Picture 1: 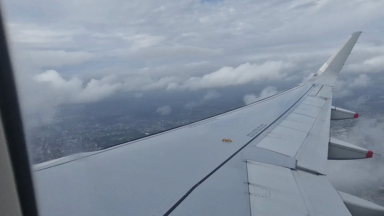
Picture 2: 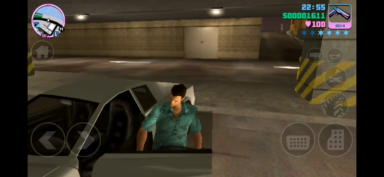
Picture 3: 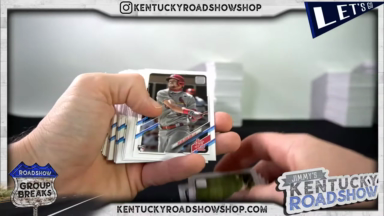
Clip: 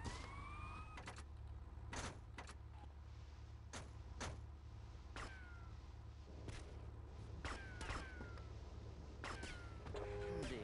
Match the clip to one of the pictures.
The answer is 2